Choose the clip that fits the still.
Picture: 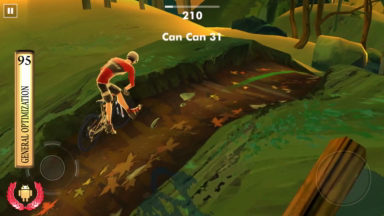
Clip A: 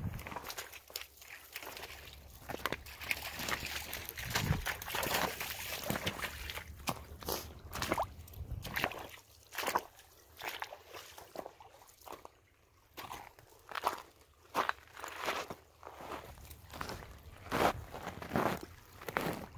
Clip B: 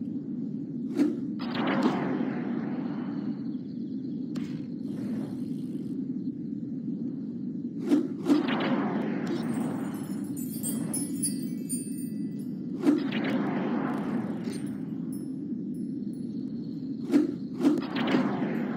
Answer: B